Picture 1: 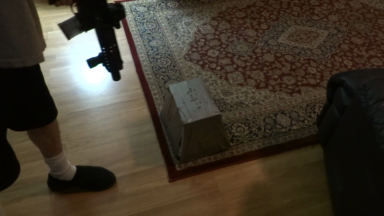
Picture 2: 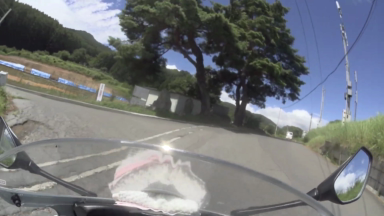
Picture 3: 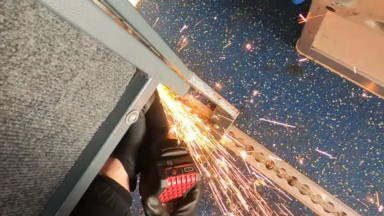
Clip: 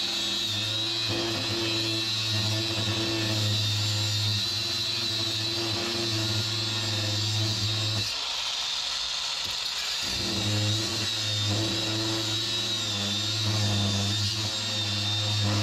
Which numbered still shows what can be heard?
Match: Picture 3